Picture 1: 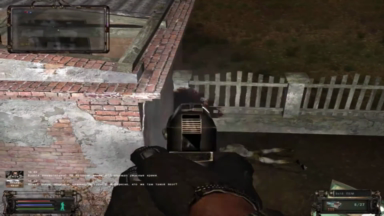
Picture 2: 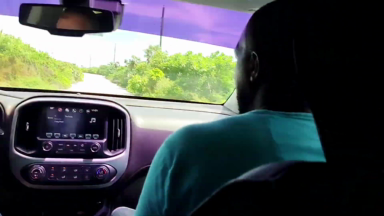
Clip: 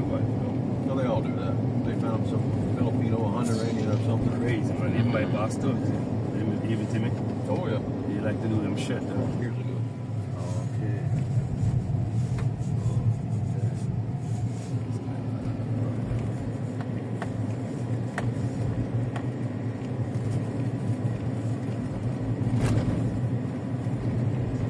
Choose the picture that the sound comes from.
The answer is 2